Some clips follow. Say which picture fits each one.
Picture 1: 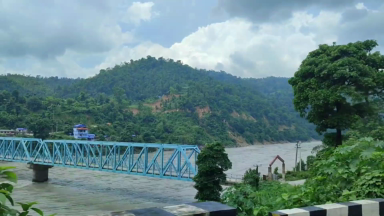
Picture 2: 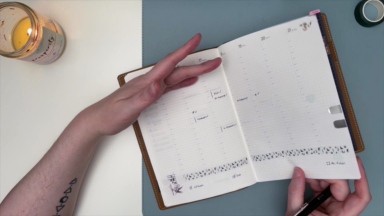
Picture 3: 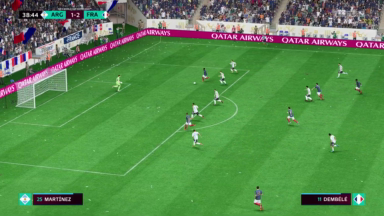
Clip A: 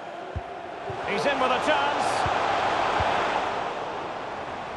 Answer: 3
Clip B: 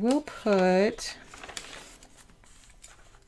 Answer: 2